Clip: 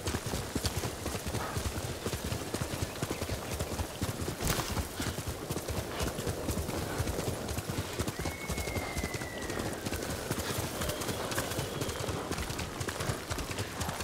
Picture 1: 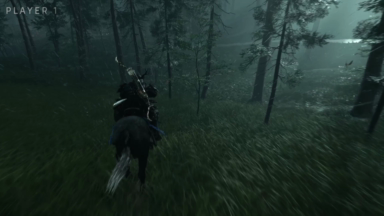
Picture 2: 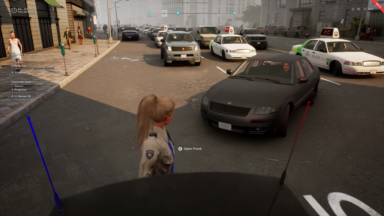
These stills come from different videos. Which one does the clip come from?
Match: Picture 1